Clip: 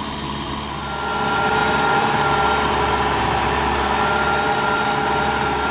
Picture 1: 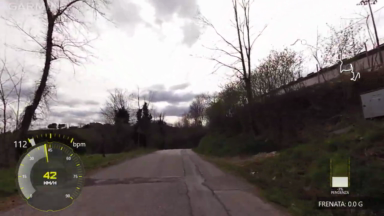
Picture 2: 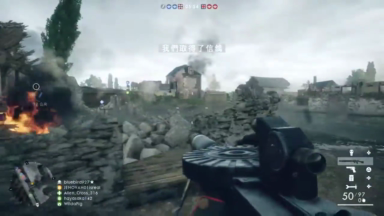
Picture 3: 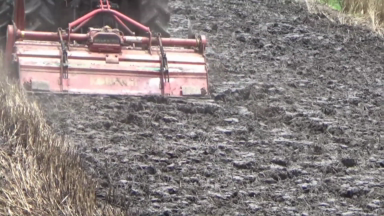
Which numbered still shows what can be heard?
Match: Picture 3